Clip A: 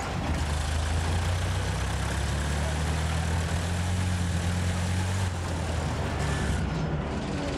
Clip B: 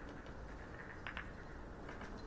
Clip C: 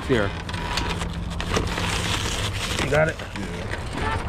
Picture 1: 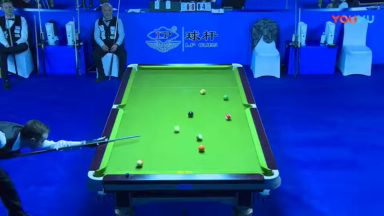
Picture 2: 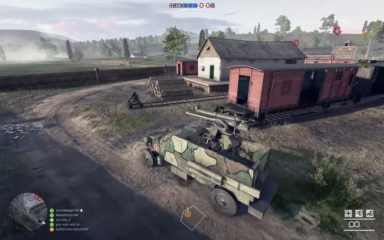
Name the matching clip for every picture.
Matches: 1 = B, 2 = A